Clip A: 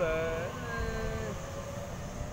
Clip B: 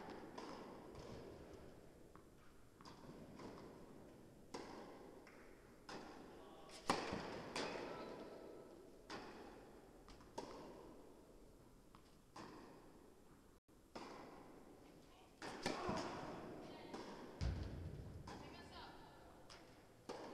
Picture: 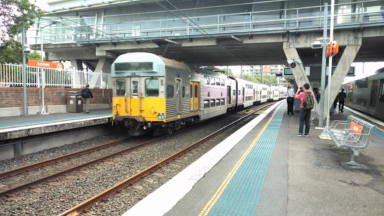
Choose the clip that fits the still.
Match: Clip A